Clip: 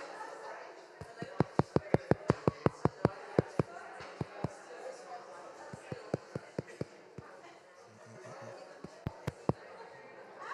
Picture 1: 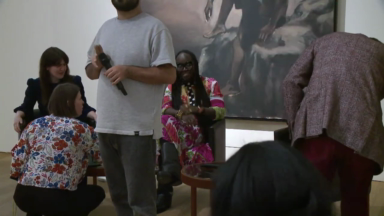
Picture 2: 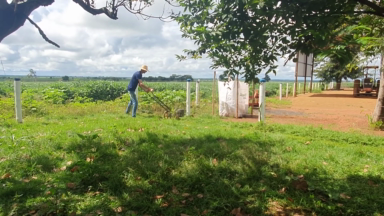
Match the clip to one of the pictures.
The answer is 1